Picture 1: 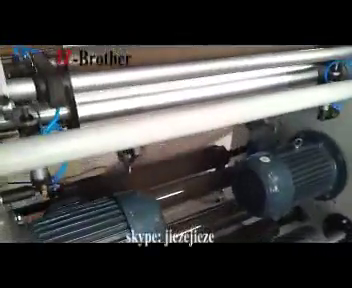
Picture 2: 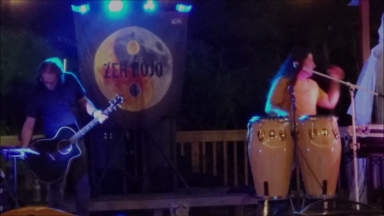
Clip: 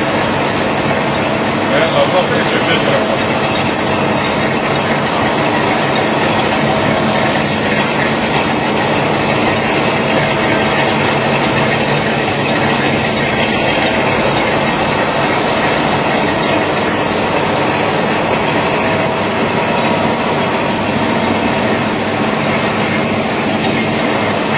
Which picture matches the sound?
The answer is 1